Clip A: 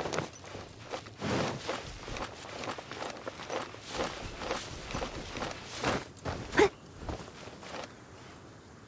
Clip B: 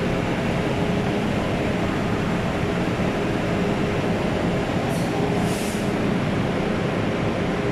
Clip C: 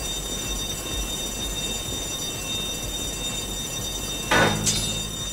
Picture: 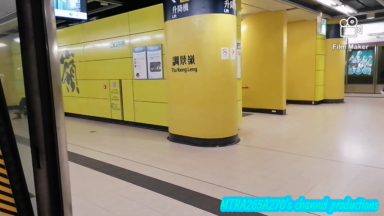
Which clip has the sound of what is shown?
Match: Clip B